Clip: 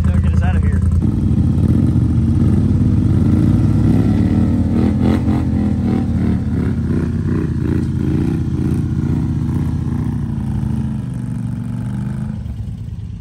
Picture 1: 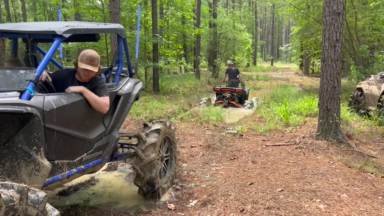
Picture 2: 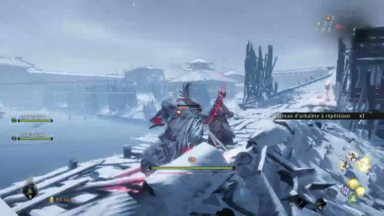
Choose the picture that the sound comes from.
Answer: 1